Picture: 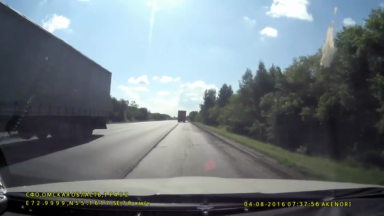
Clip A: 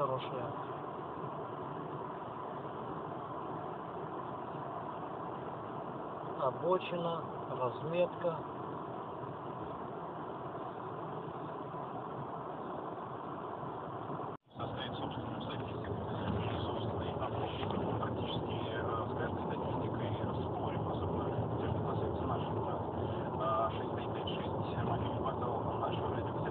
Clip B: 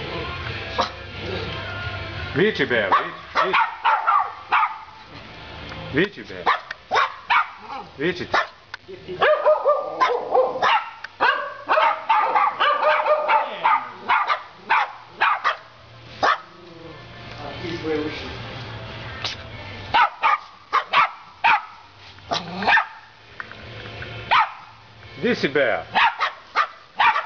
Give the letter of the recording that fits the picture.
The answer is A